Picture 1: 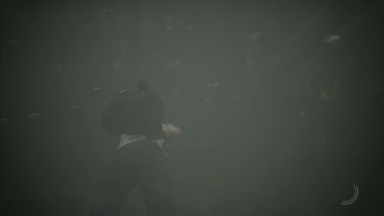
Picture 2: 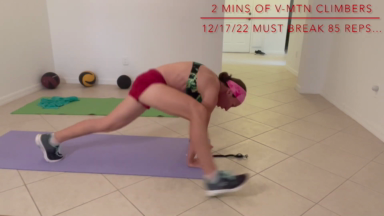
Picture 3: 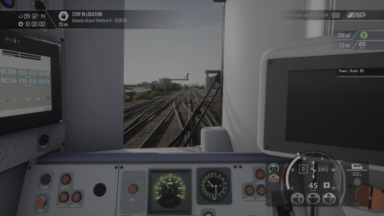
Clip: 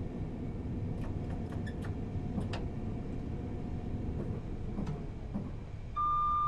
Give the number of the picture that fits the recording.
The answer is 3